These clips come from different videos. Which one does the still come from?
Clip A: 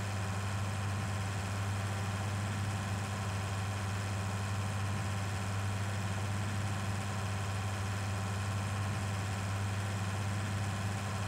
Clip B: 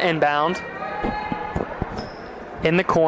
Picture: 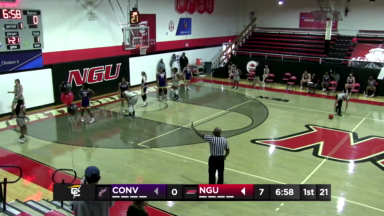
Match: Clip B